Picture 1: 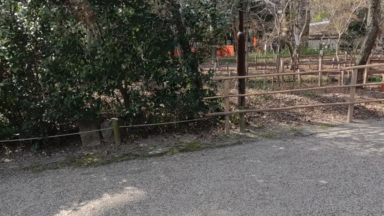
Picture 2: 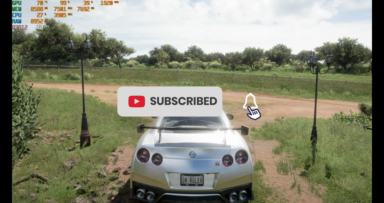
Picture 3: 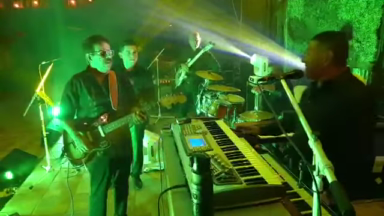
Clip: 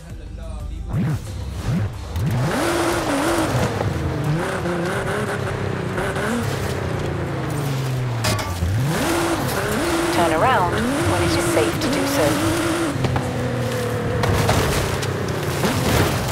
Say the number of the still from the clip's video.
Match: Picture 2